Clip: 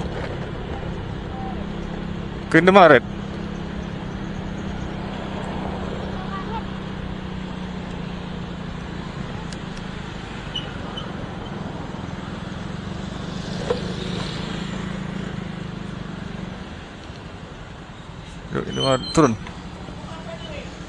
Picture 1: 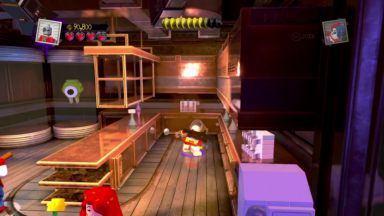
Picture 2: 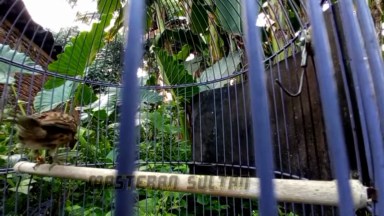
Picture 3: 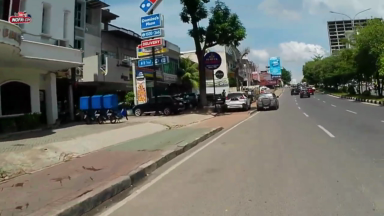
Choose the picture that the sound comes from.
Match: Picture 3